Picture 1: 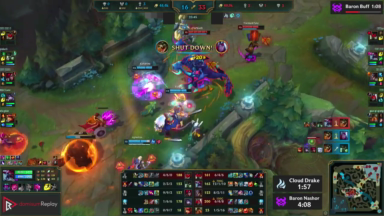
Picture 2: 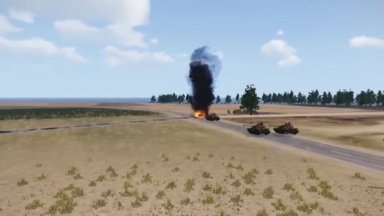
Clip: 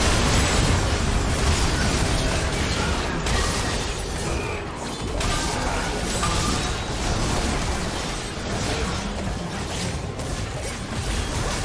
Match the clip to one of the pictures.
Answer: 1